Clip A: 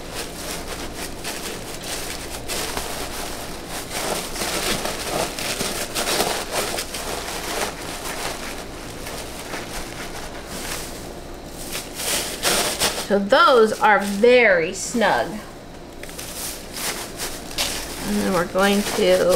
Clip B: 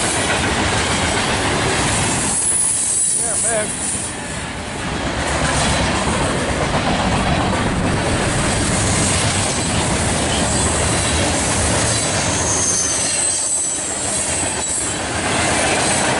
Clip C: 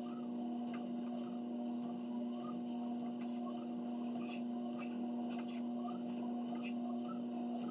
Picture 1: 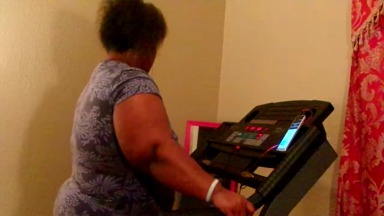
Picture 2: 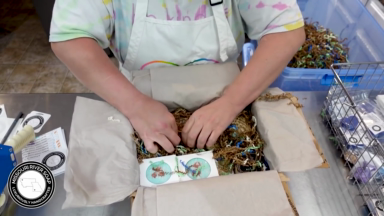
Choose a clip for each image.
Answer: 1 C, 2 A